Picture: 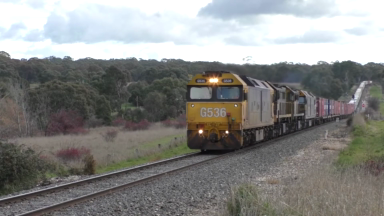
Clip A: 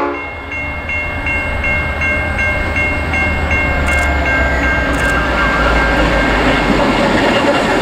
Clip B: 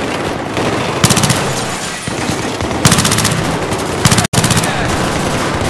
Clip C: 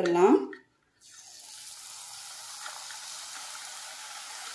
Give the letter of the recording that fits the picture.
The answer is A